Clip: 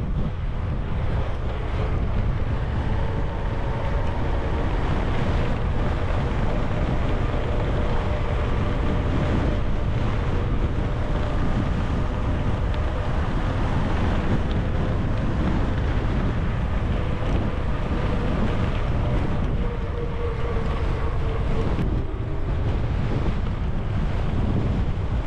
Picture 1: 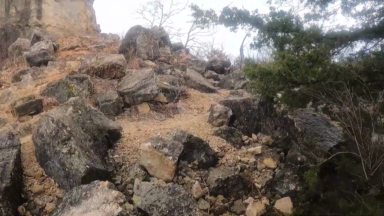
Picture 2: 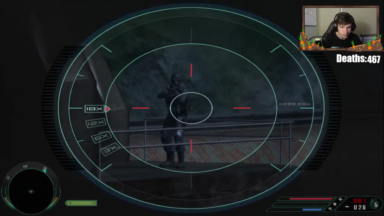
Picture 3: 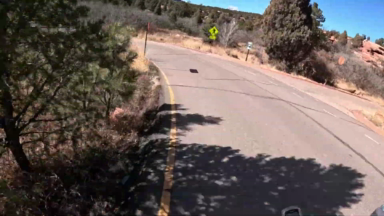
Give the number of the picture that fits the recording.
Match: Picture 3